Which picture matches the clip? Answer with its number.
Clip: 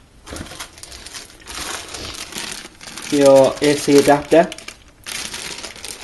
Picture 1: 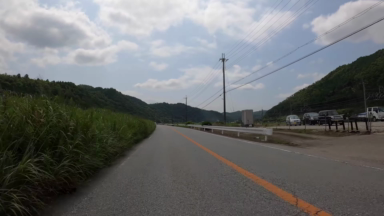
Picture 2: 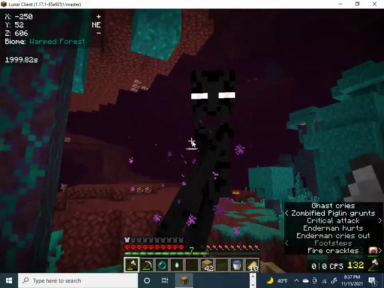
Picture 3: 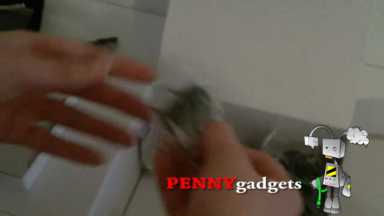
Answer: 3